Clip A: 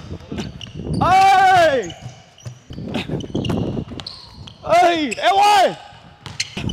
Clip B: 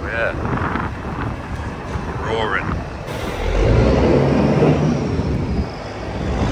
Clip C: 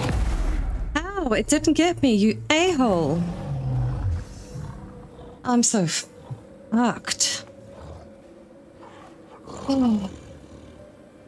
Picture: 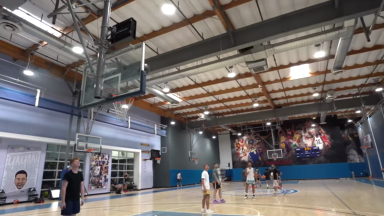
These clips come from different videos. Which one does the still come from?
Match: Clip A